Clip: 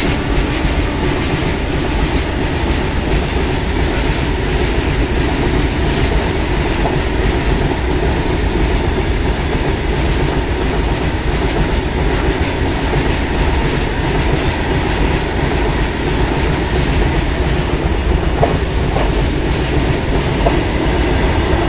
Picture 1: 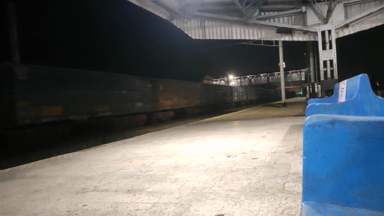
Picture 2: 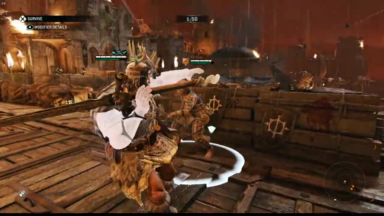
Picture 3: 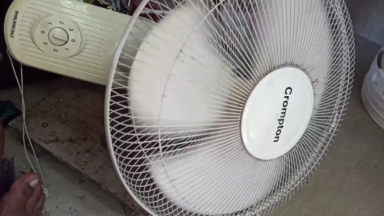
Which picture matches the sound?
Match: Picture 1